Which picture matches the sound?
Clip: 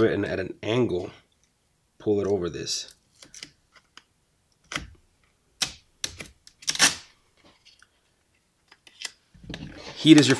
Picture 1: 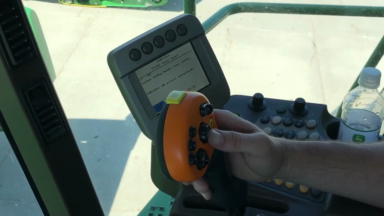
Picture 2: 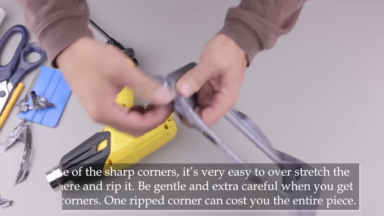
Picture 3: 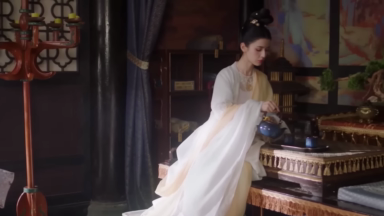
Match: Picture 2